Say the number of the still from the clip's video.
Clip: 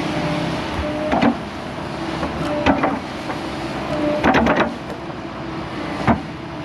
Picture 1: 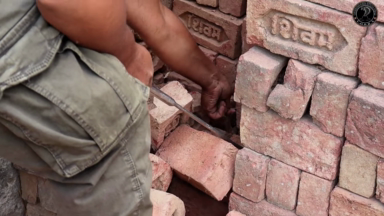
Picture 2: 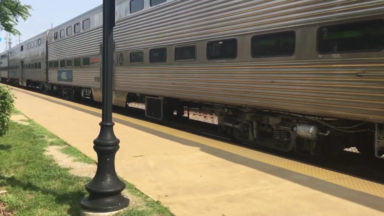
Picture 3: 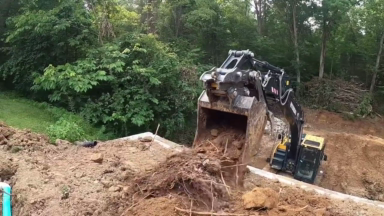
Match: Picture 3